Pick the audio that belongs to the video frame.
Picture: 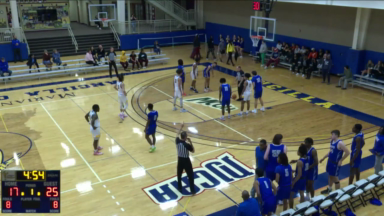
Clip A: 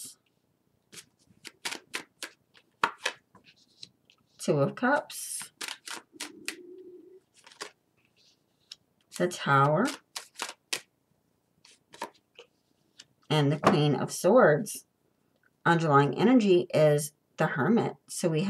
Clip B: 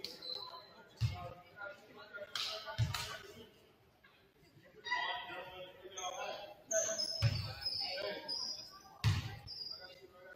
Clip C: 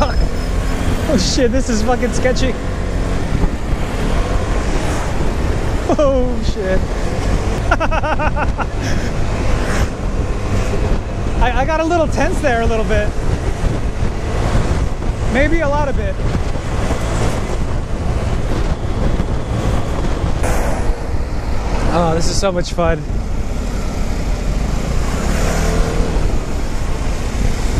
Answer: B